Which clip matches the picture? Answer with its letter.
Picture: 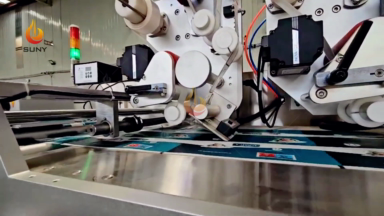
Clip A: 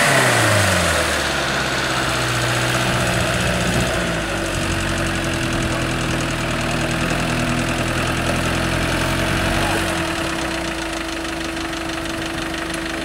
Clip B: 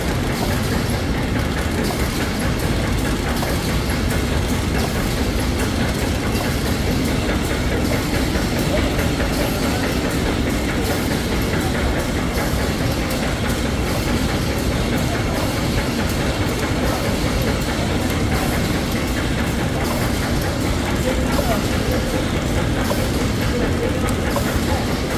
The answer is B